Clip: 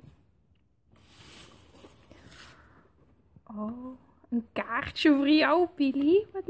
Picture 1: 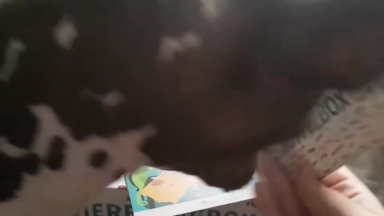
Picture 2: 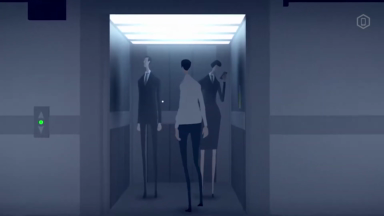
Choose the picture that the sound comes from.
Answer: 1